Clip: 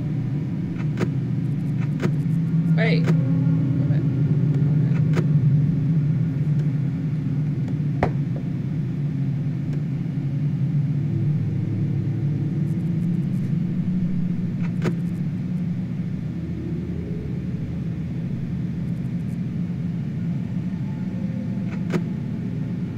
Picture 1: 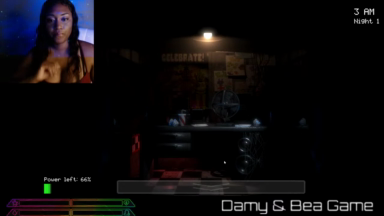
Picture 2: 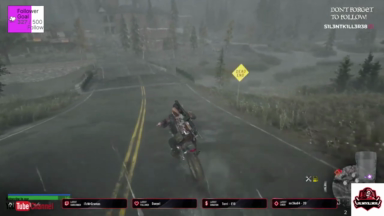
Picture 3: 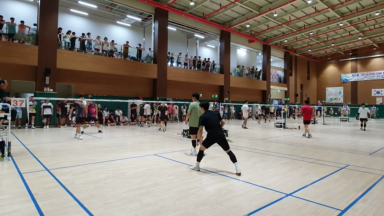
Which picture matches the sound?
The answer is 1